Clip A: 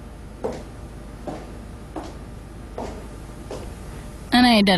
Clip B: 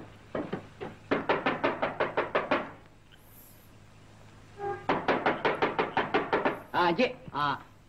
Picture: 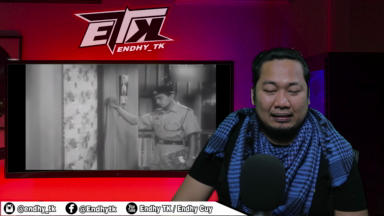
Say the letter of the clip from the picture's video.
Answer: B